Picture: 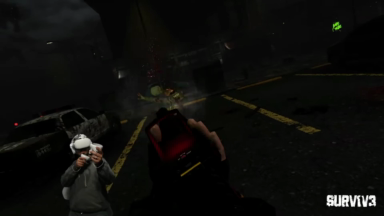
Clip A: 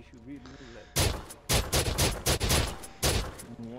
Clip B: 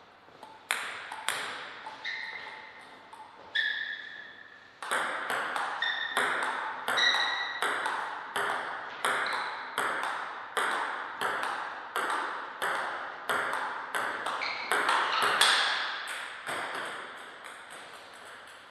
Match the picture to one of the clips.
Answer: A